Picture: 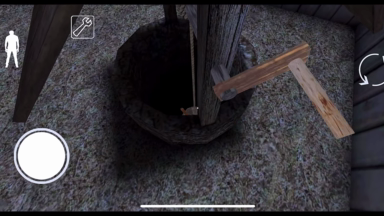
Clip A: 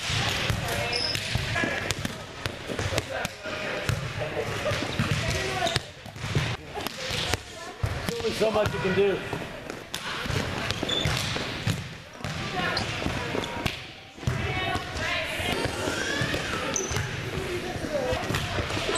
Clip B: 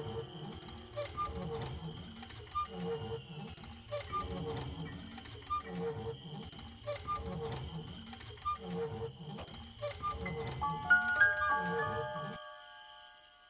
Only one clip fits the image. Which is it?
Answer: B